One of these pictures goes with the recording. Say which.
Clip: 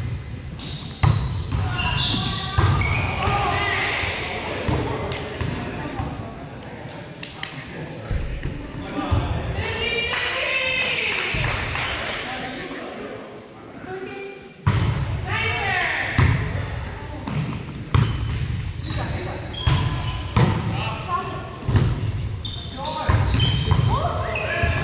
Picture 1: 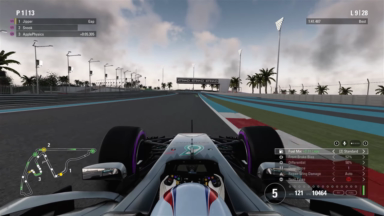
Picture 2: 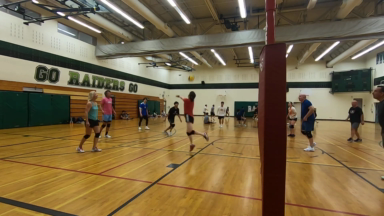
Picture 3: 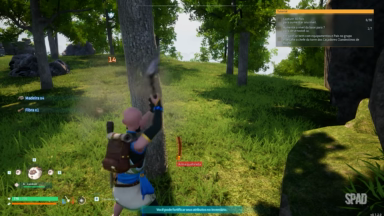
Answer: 2